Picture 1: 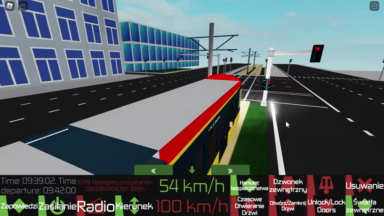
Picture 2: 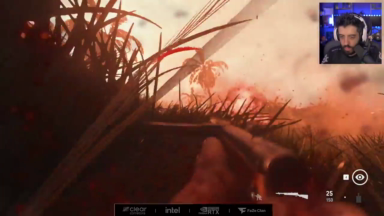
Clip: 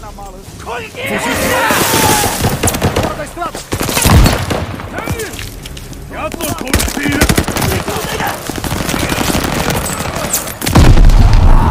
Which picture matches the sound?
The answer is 2